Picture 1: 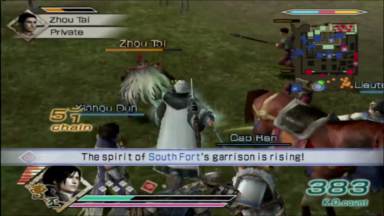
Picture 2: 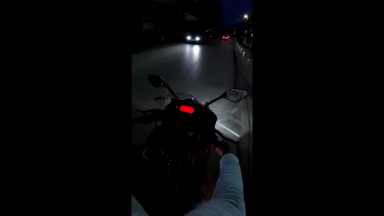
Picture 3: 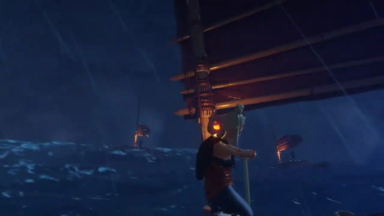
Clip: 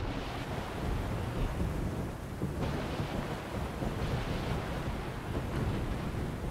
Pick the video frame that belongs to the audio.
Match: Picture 3